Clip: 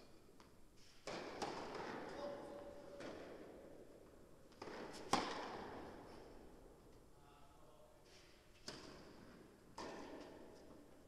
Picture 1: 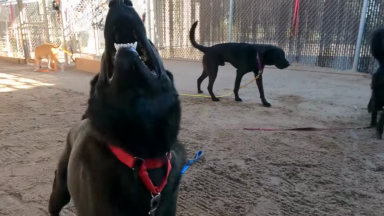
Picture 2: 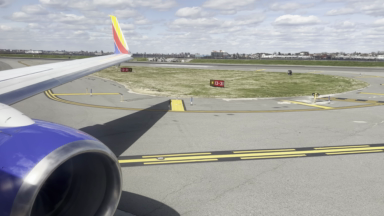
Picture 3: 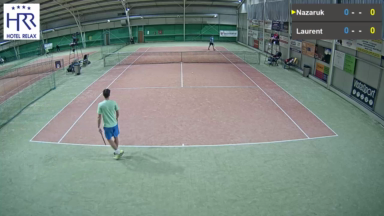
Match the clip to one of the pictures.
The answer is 3